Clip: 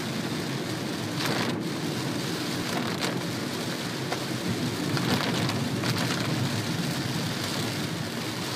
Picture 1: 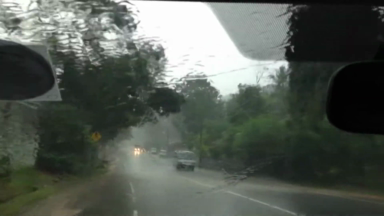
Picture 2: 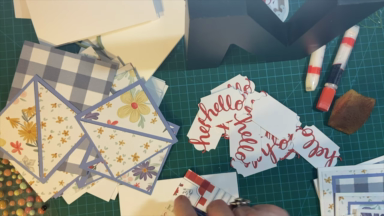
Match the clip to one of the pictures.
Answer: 1